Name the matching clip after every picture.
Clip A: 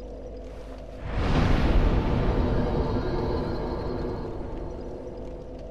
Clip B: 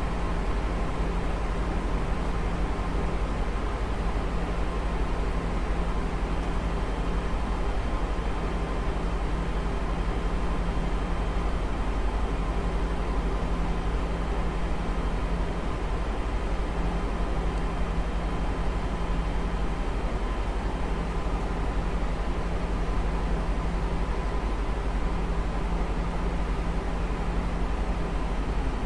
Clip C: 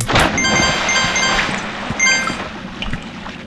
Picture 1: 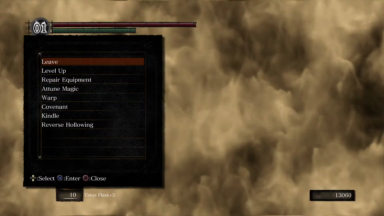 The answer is A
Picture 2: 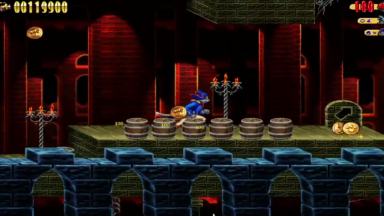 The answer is C